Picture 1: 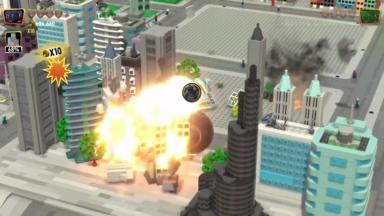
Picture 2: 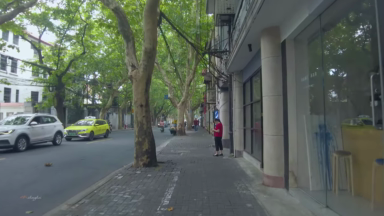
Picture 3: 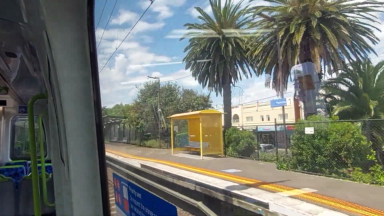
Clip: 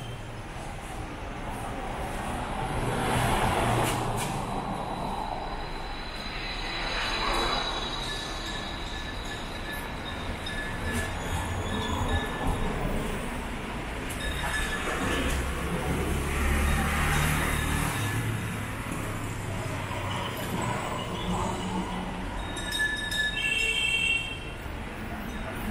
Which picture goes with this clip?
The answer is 2